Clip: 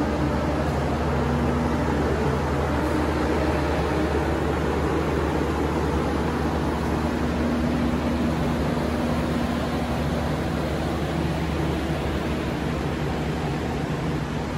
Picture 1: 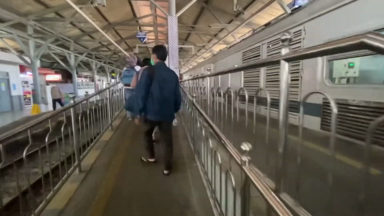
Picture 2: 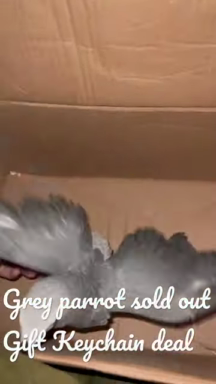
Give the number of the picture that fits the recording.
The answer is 1